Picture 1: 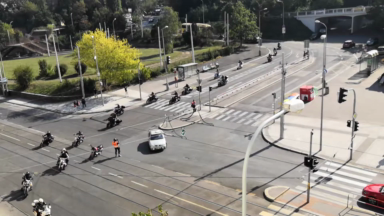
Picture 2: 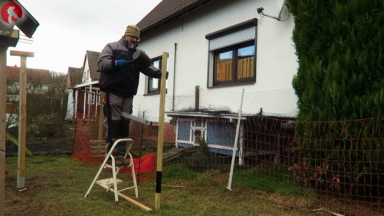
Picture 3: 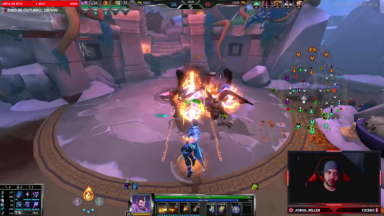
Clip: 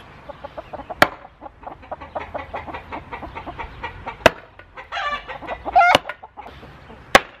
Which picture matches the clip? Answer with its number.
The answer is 2